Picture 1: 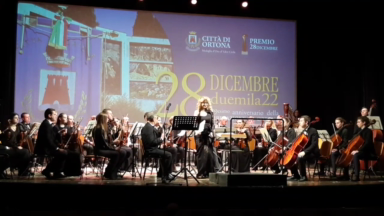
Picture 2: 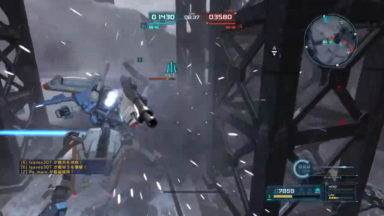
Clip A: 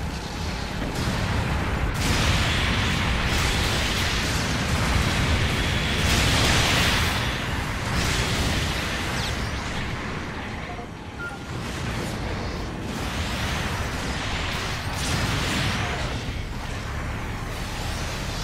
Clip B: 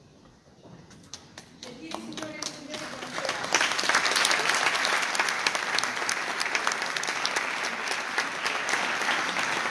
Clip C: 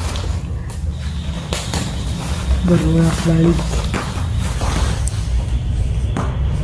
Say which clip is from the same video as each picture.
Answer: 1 B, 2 A